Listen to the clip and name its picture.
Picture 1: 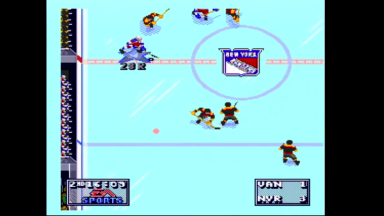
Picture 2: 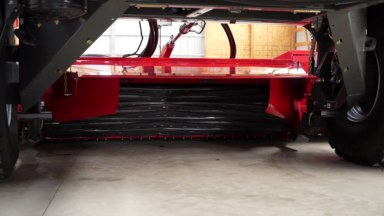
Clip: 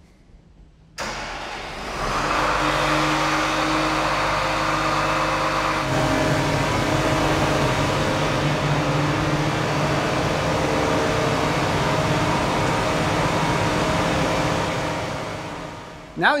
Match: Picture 2